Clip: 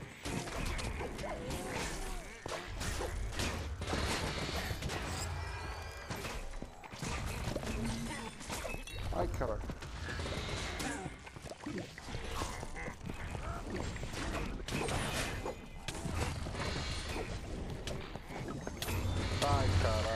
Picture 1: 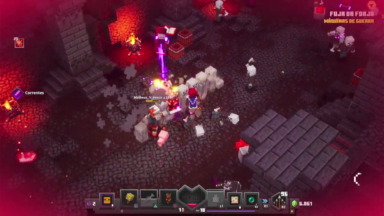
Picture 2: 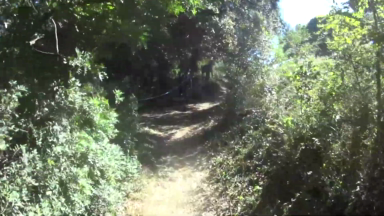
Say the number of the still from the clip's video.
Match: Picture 1